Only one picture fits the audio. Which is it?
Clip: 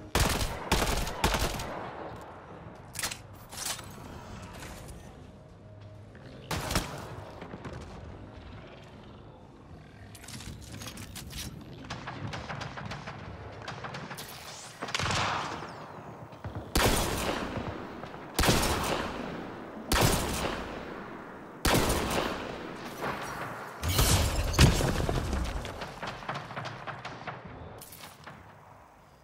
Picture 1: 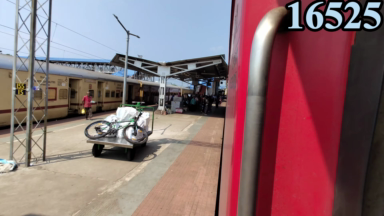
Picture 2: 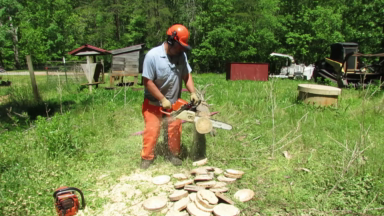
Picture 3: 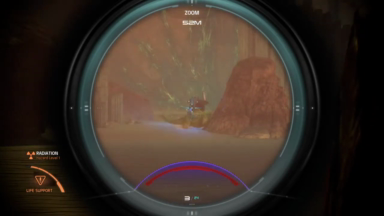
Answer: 3